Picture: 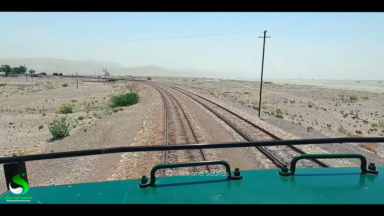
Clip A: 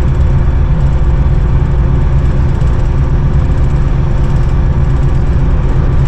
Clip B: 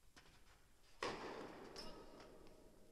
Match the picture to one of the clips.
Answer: A